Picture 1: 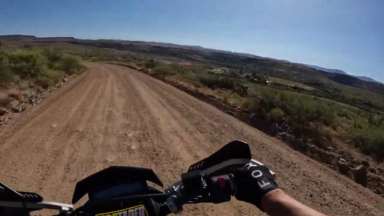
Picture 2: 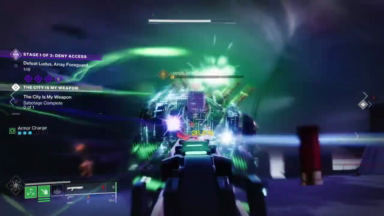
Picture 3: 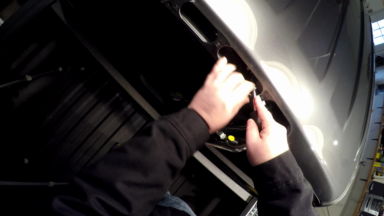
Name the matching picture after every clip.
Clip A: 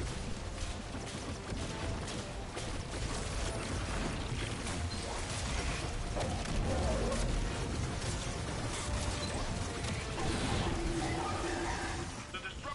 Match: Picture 2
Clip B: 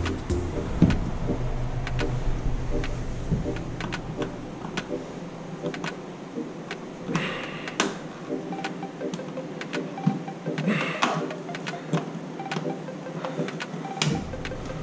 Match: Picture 3